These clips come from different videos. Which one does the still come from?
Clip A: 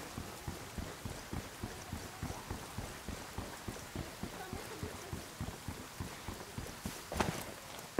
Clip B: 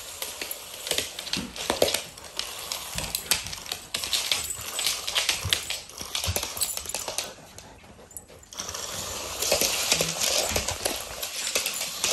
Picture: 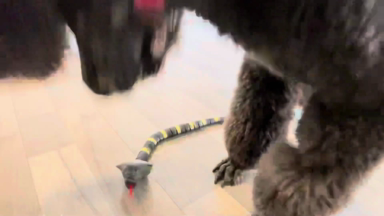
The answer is B